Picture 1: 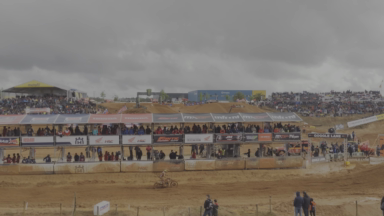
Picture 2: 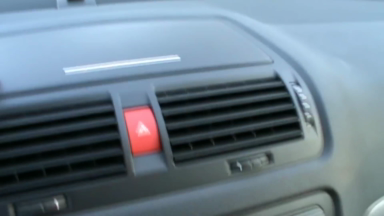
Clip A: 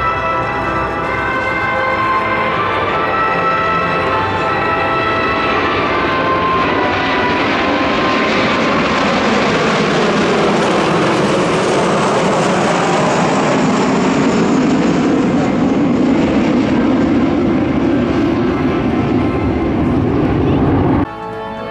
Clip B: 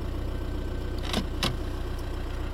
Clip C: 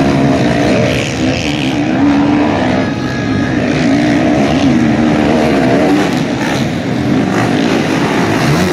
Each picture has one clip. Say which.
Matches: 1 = C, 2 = B